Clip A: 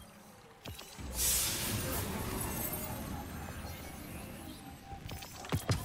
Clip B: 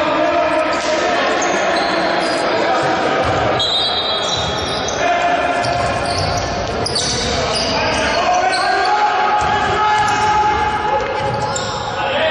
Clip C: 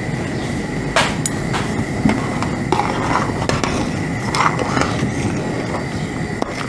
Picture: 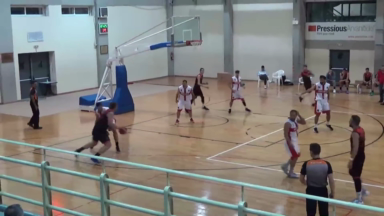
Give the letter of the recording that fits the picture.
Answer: B